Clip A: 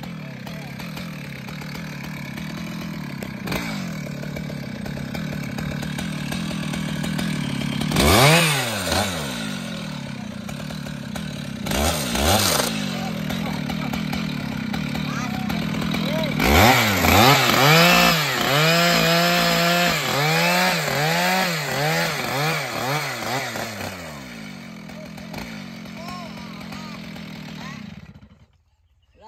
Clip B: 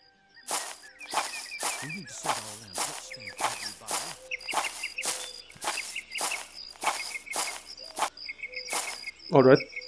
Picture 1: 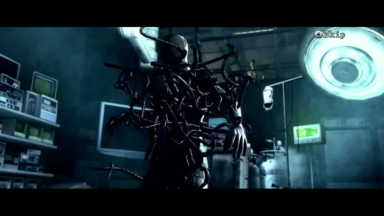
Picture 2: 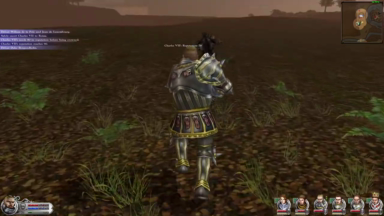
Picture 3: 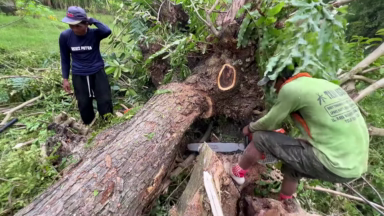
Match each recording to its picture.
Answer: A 3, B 2